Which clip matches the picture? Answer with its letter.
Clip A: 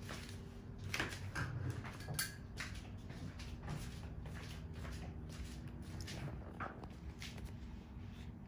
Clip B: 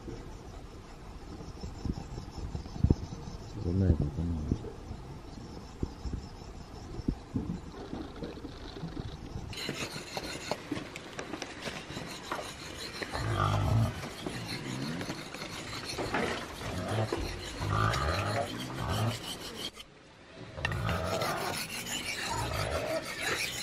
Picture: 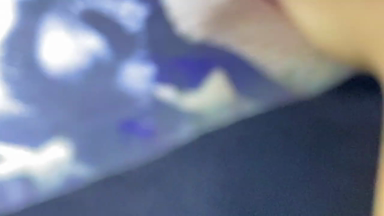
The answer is A